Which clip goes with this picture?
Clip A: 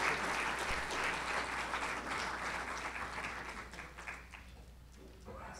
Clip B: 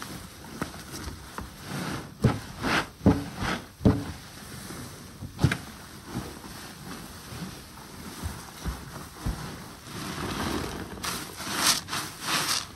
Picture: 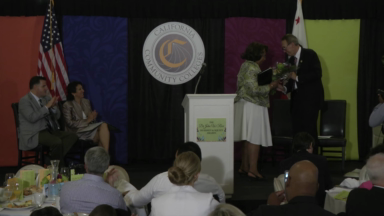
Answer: A